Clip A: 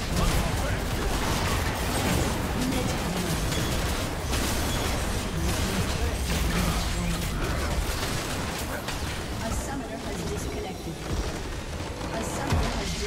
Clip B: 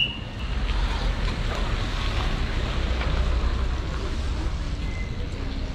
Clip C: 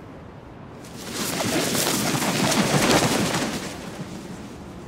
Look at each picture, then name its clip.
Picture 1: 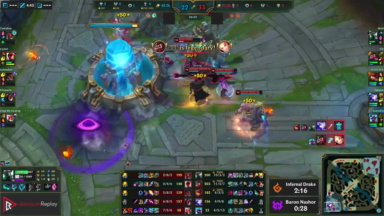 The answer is A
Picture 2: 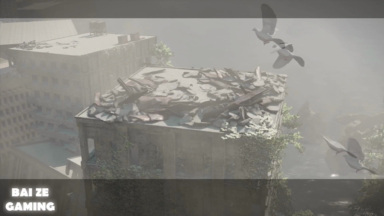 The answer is C